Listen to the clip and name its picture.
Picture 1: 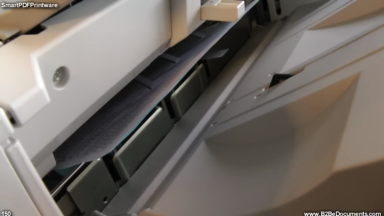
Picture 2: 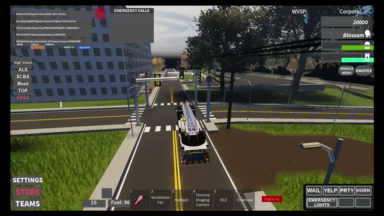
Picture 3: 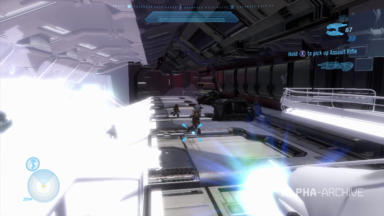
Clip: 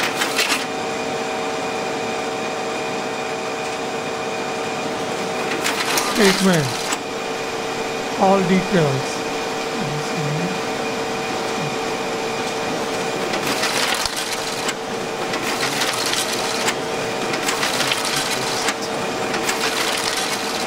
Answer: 1